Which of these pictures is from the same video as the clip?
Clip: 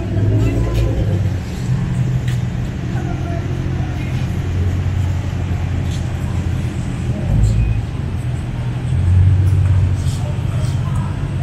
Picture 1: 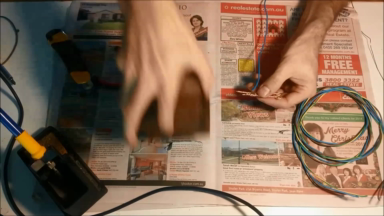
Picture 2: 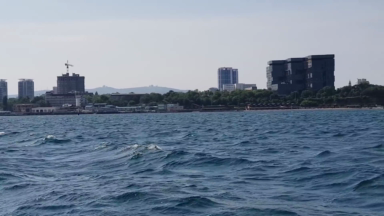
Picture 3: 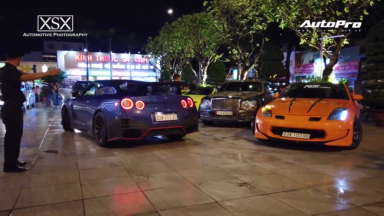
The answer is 3